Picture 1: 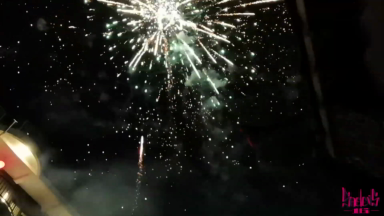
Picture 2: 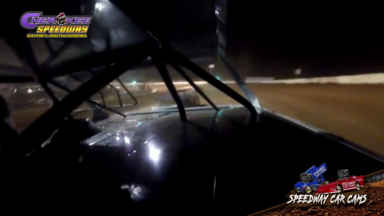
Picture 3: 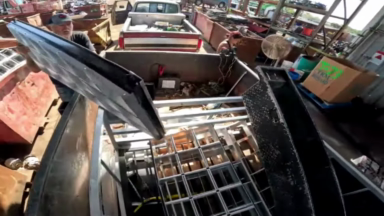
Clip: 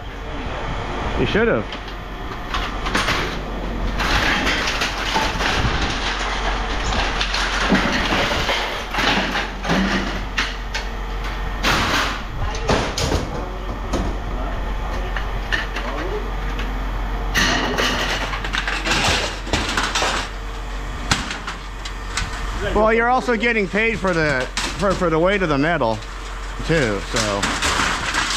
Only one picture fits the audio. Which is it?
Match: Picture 3